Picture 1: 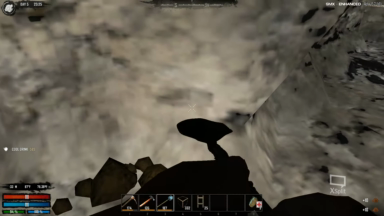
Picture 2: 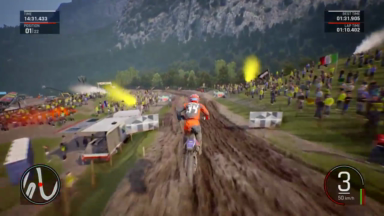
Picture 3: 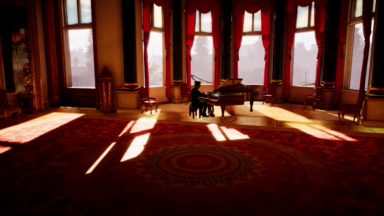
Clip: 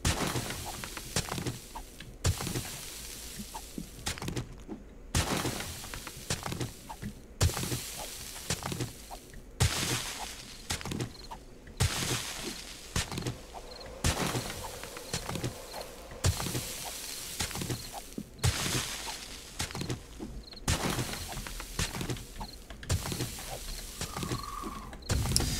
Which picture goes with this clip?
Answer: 1